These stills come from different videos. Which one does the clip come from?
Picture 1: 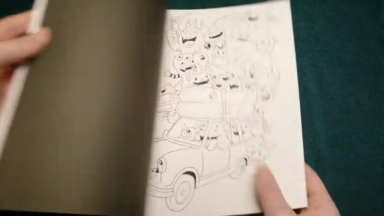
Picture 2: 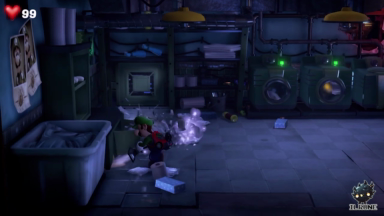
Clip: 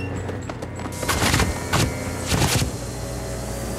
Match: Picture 2